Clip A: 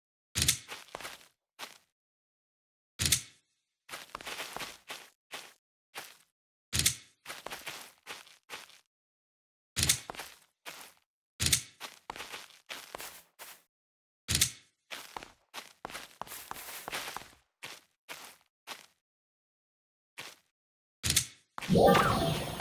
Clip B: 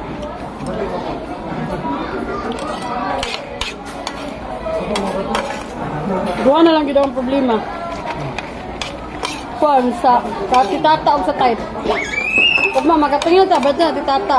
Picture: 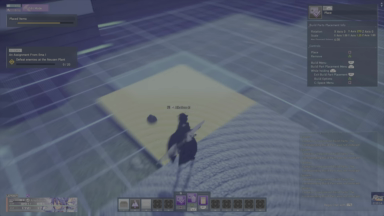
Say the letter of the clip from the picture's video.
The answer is A